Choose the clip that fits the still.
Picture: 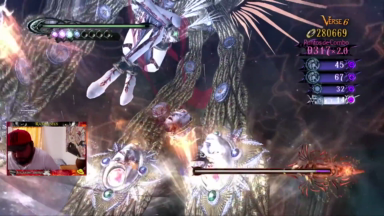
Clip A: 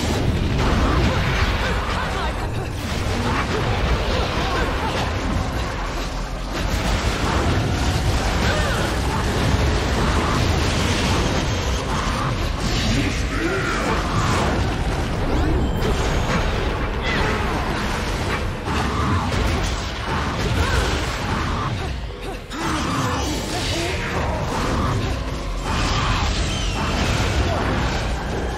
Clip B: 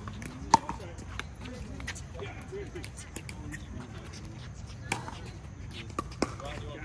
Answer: A